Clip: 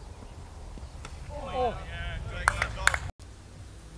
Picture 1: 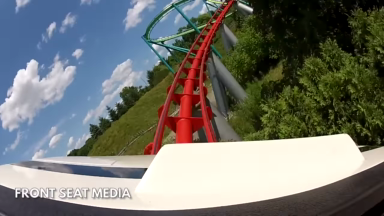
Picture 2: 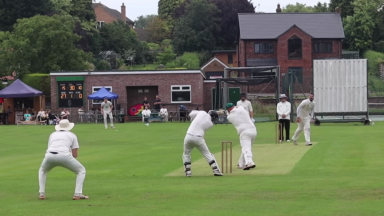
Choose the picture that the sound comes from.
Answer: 2